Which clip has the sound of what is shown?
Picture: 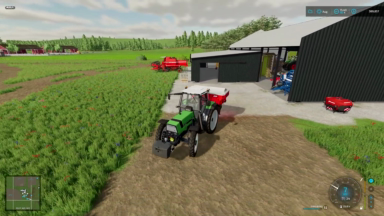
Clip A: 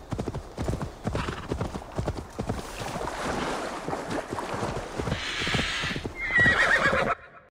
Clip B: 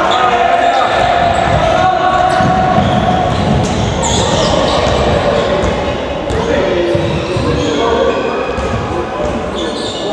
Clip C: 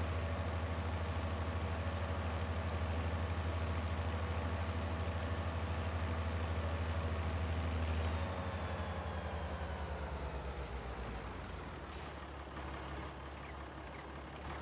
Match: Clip C